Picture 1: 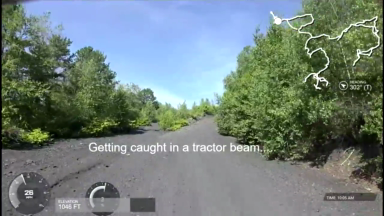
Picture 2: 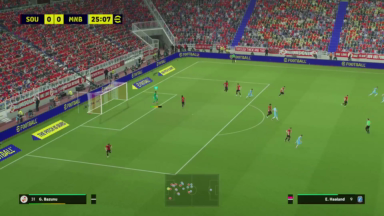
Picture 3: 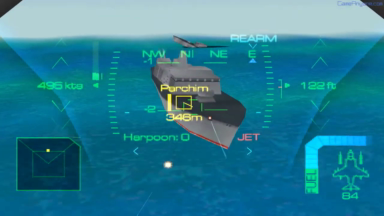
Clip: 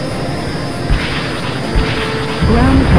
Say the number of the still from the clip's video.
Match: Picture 3